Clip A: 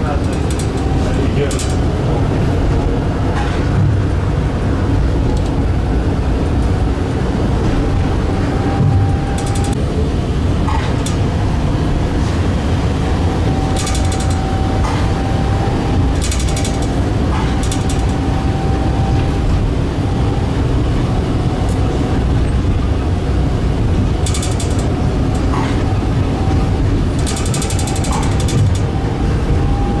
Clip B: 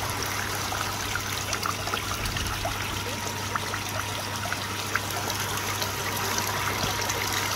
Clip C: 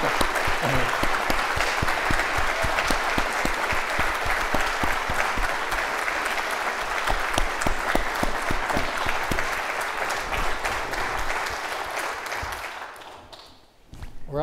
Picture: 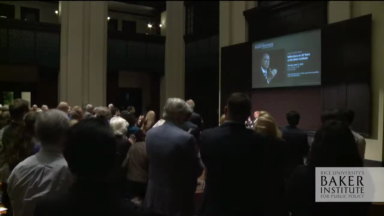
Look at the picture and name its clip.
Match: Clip C